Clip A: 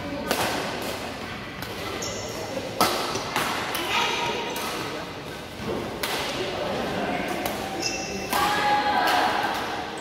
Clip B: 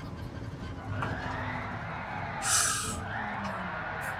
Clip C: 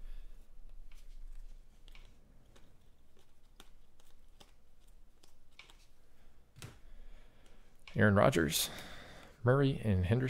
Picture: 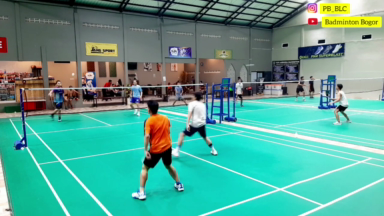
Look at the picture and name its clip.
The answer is A